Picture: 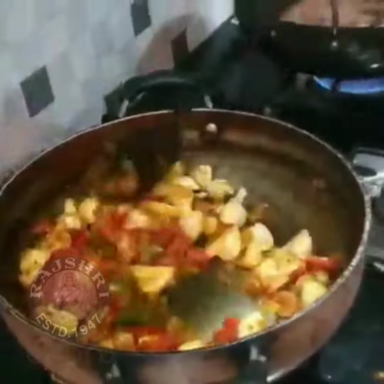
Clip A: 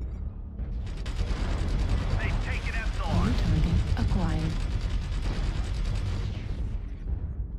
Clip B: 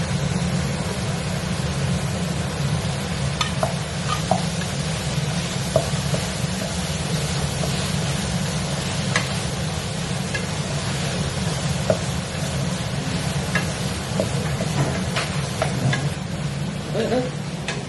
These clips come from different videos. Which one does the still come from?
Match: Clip B